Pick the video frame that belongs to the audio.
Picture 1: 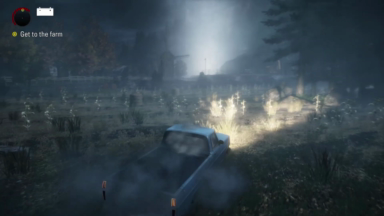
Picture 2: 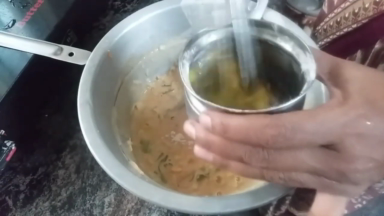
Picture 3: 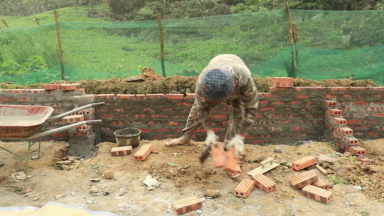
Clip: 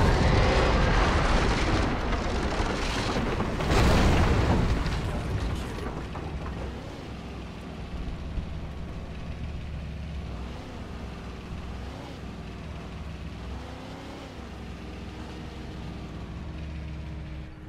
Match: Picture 1